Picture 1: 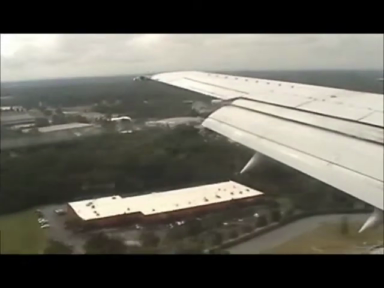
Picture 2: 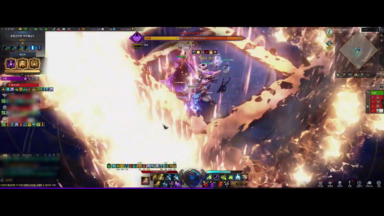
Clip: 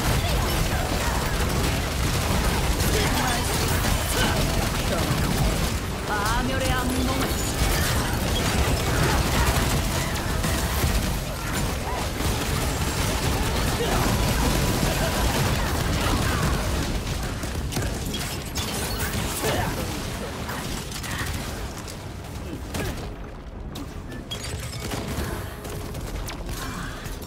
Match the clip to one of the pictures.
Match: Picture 2